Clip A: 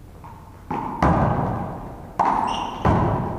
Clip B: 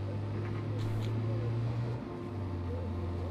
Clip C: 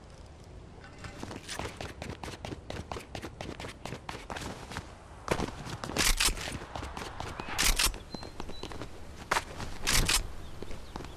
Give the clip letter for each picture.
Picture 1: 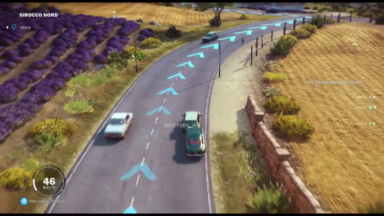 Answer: B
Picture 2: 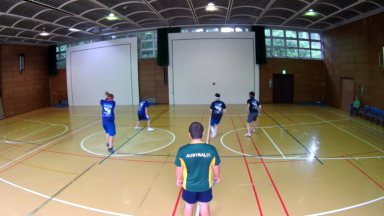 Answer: A